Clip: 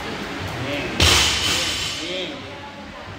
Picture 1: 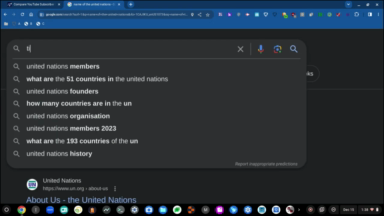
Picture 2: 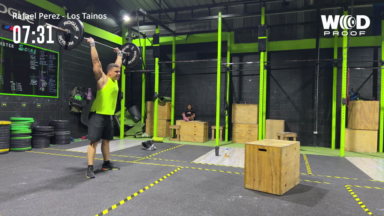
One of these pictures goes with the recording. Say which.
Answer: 2